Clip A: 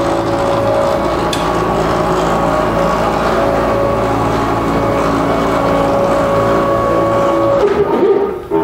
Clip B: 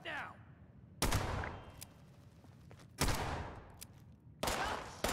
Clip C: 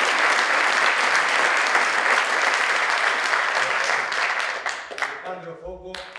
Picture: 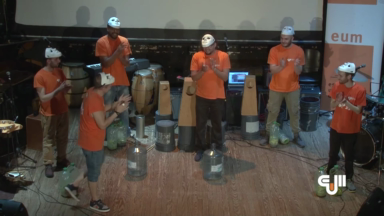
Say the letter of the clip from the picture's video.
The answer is C